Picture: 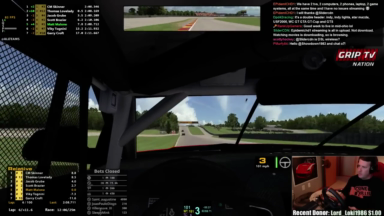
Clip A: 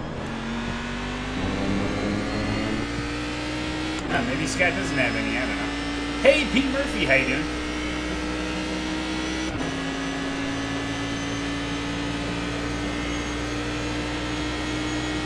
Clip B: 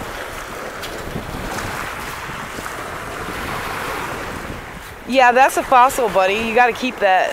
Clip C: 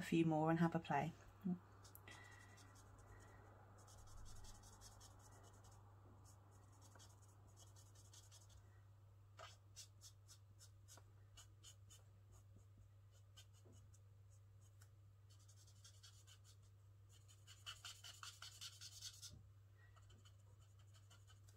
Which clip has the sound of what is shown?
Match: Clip A